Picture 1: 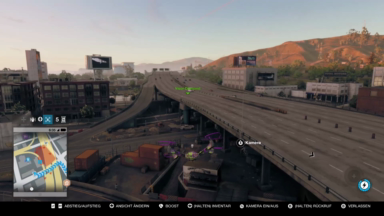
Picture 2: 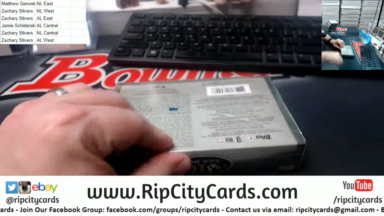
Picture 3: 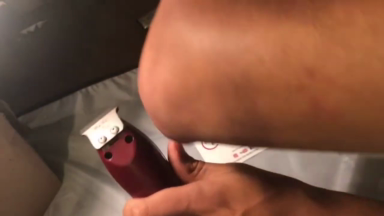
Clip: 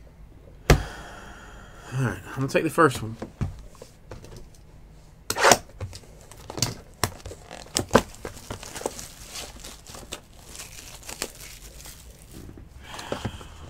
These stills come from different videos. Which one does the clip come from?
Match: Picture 2